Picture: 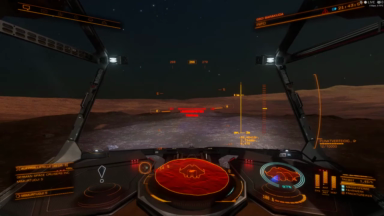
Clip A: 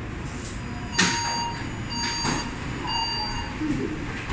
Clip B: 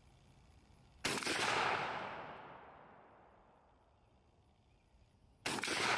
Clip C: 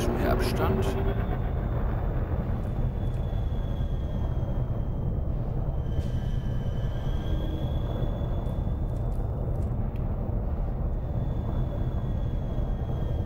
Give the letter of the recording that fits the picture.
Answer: C